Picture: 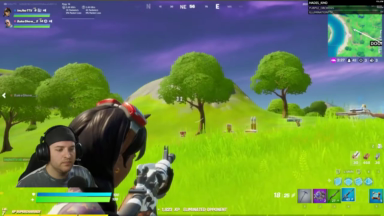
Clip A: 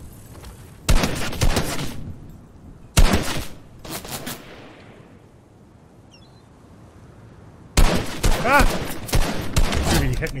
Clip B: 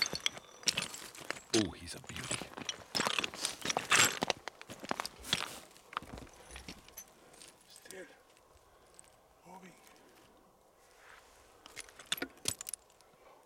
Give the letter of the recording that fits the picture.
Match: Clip A